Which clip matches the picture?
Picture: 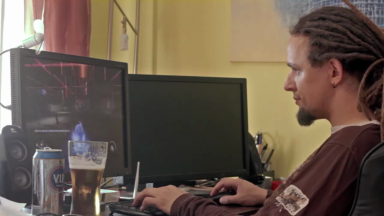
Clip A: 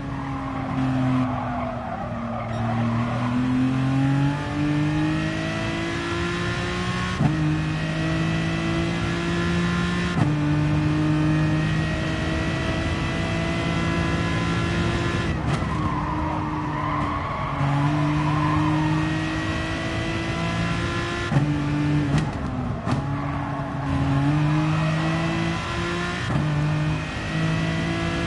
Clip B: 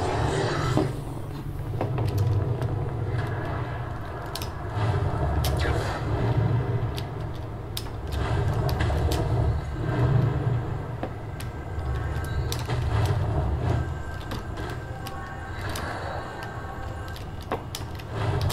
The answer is B